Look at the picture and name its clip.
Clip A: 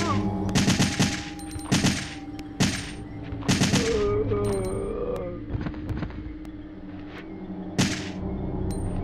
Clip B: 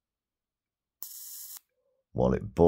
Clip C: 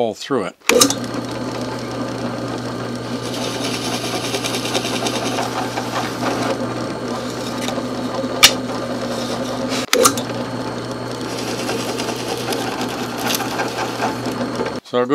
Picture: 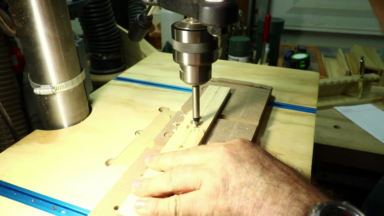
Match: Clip C